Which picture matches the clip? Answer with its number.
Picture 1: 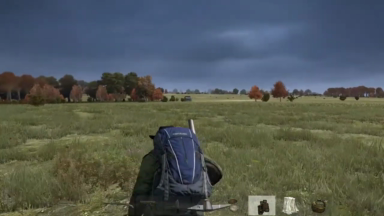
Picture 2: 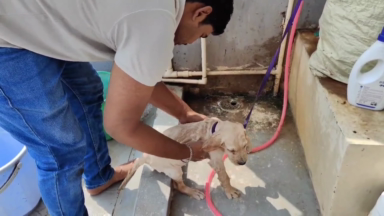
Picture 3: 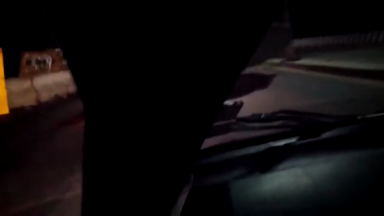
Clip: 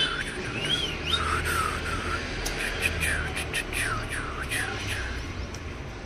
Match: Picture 2